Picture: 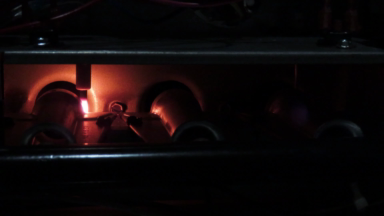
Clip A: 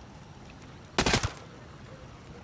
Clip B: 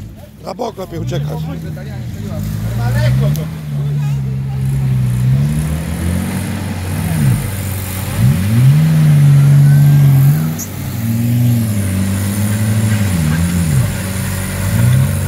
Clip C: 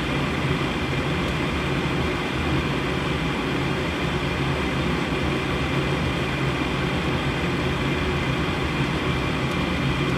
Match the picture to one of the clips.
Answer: C